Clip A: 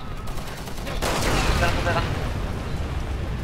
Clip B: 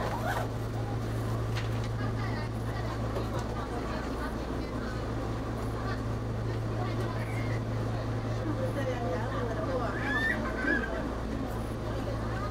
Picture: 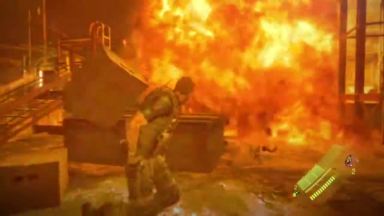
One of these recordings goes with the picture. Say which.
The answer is A